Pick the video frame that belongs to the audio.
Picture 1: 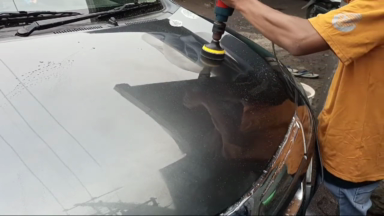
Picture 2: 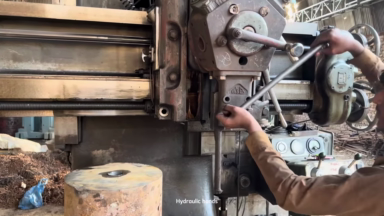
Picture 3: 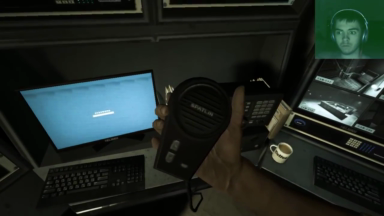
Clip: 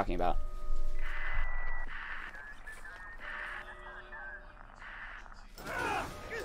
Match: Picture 3